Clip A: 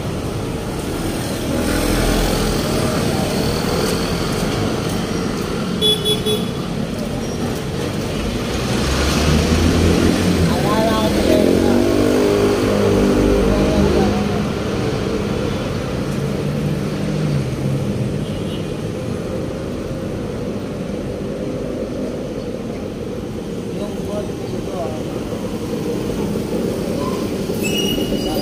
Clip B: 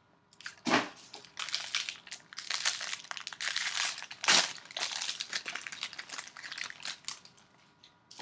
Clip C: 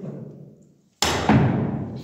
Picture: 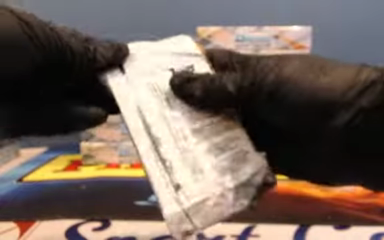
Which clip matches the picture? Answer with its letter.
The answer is B